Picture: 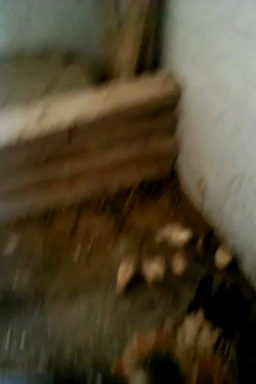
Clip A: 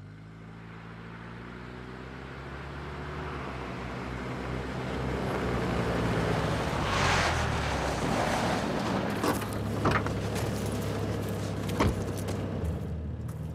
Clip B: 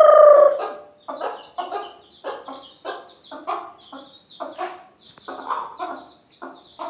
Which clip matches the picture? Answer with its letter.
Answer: B